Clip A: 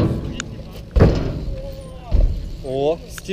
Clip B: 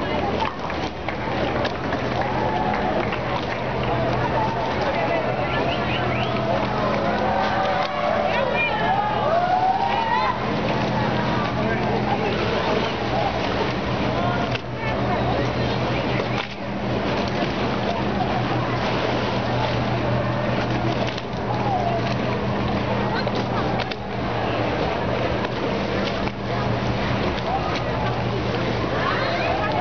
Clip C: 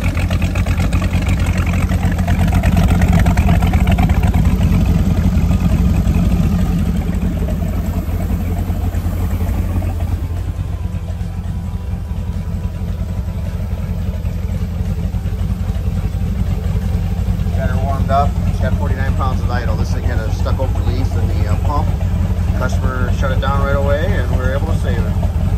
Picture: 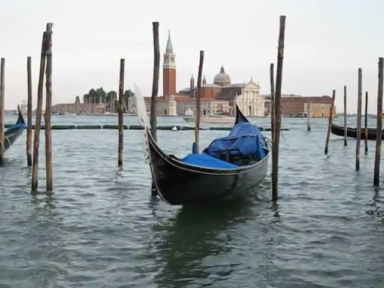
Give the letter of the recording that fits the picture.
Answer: B